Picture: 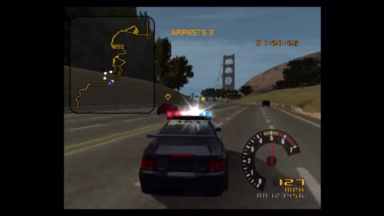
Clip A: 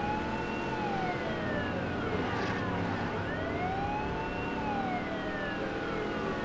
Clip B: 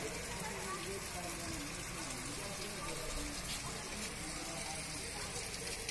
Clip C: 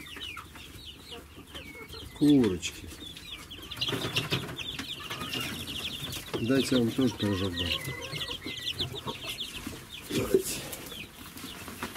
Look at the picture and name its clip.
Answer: A